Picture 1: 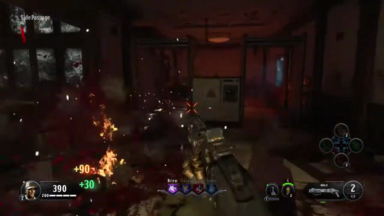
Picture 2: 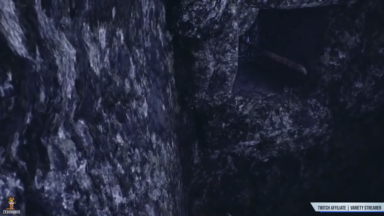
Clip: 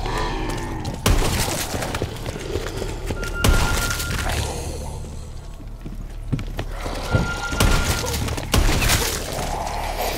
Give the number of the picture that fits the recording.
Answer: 1